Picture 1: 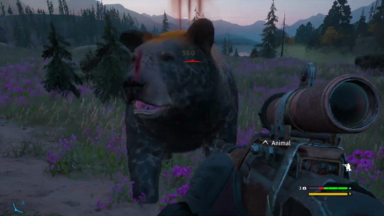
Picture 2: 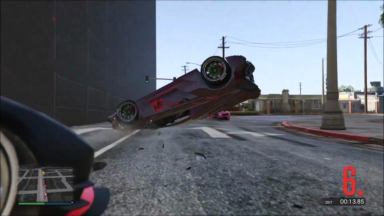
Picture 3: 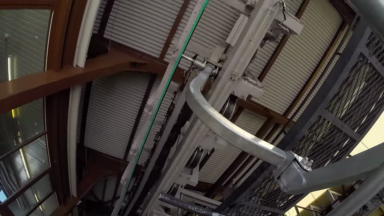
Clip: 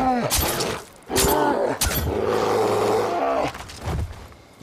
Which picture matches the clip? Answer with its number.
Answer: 1